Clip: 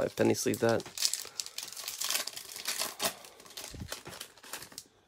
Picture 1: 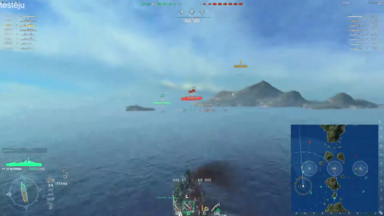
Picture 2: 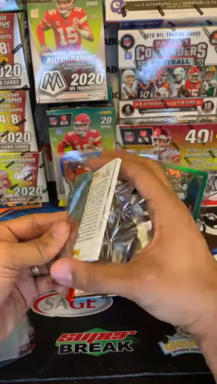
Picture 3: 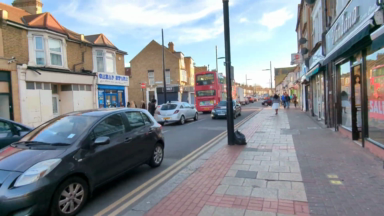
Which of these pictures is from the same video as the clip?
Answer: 2